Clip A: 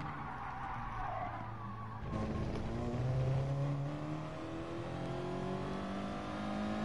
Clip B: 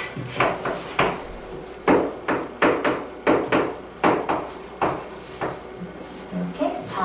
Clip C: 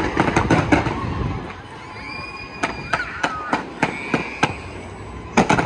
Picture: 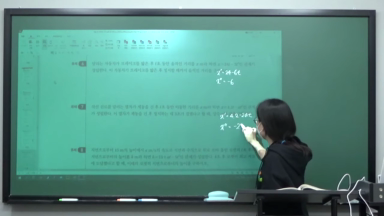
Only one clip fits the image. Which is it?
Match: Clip B